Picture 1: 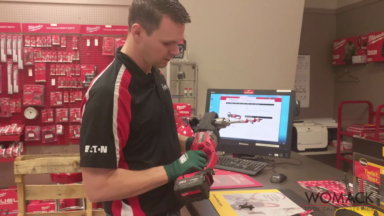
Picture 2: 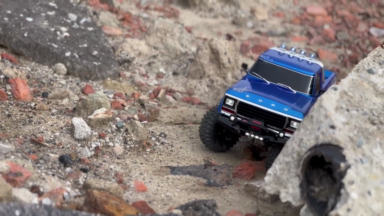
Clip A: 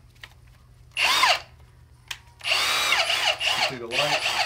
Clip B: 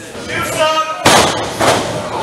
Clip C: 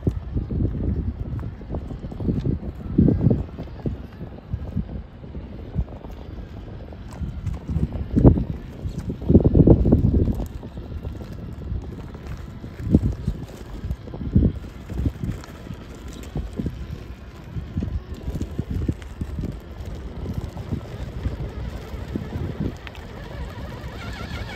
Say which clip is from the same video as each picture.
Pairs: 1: A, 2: C